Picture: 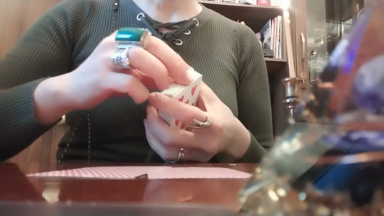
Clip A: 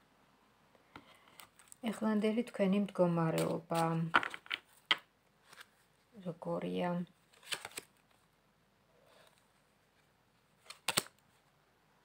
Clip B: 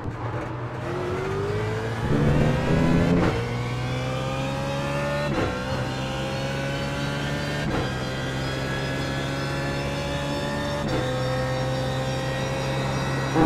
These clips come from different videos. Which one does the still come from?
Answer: A